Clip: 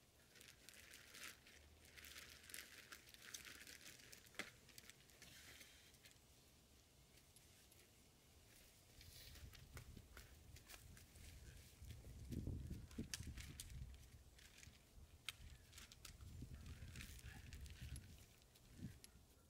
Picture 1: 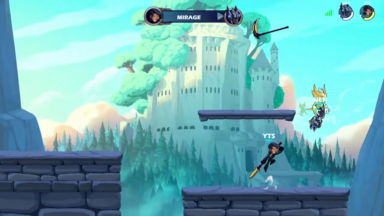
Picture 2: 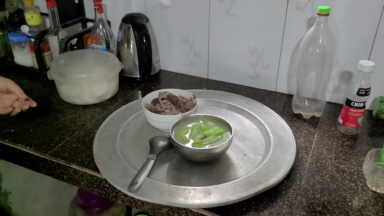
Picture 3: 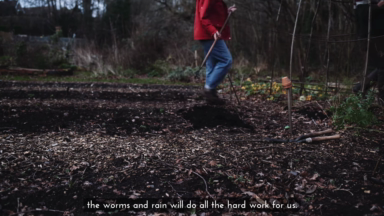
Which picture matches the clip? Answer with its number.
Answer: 3